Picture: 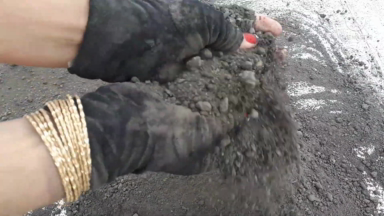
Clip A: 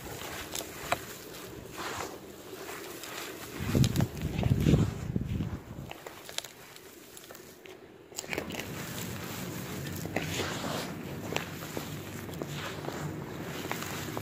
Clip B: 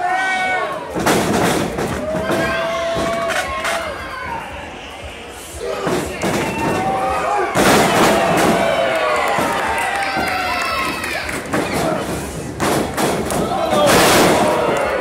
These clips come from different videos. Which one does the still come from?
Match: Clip A